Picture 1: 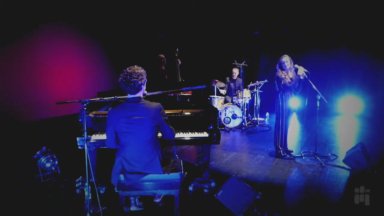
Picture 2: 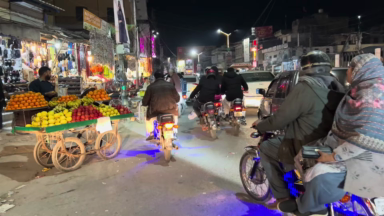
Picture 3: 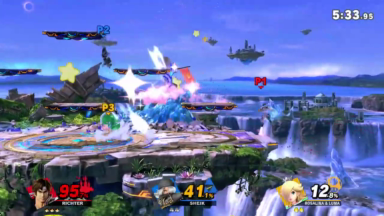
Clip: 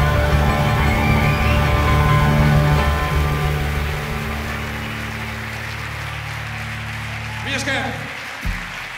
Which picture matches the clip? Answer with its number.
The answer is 1